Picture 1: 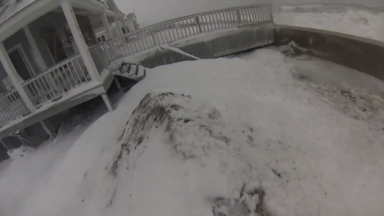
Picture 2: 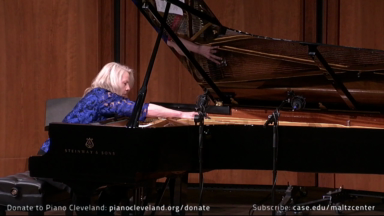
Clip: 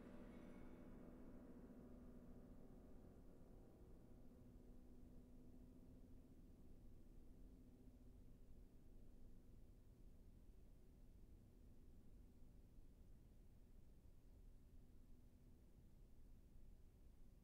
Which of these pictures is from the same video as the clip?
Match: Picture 2